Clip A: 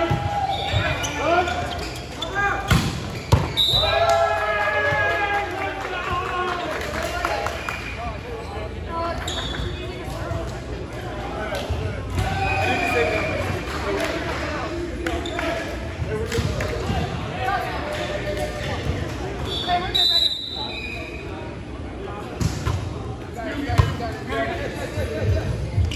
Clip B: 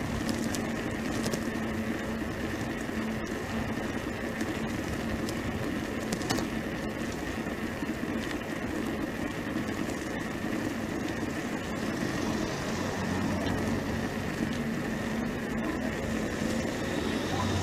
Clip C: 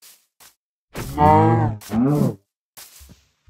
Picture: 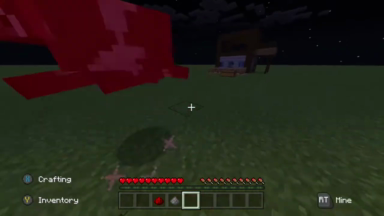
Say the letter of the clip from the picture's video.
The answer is C